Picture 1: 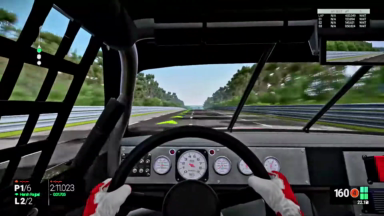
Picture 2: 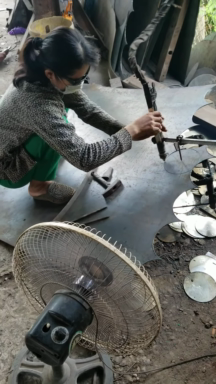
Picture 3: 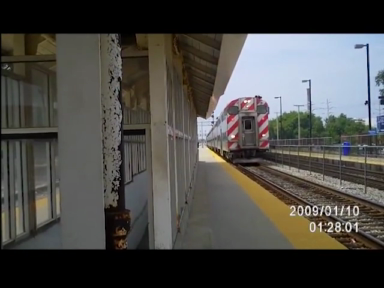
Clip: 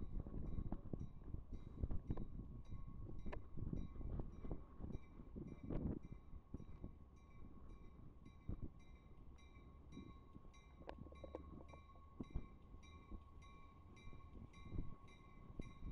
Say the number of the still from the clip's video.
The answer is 3